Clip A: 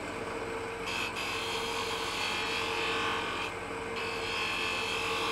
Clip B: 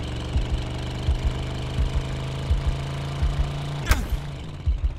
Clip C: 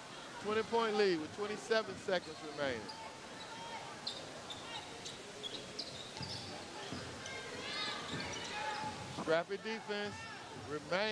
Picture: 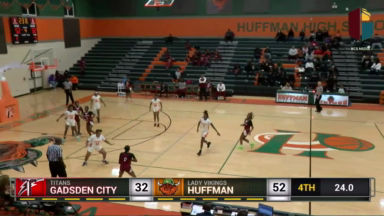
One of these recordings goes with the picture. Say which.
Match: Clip C